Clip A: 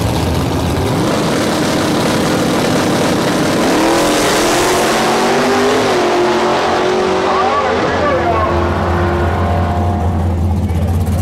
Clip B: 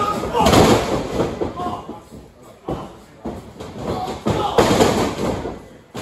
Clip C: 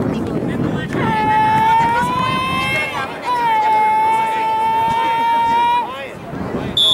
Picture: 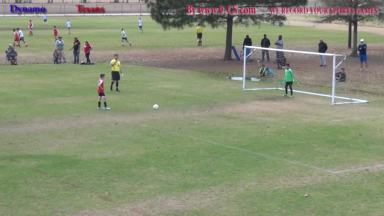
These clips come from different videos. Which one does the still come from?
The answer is C